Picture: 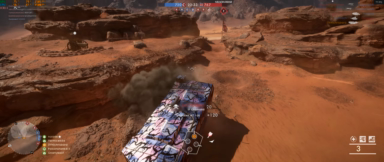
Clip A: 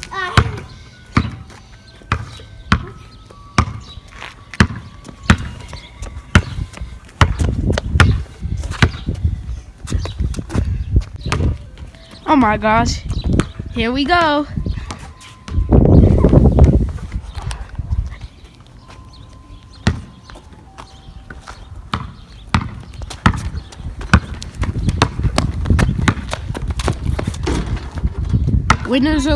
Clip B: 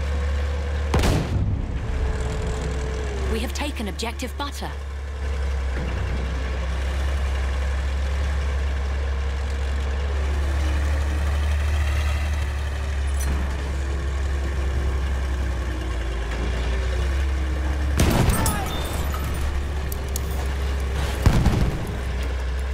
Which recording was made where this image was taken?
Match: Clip B